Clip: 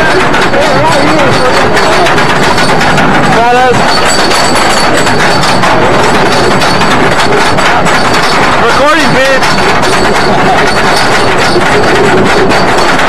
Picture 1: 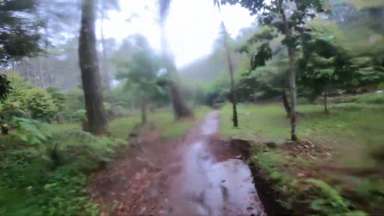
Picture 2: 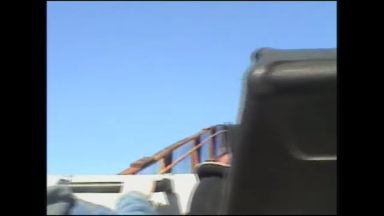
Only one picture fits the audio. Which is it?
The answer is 2